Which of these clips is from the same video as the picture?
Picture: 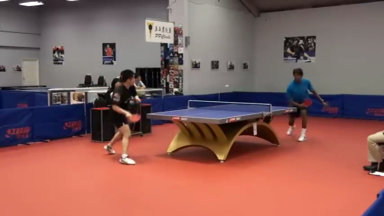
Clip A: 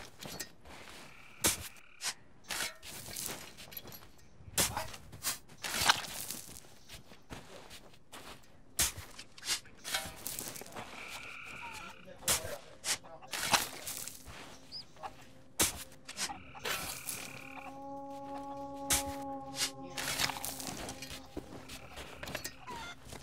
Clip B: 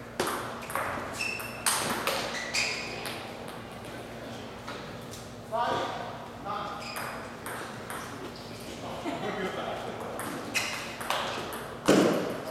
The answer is B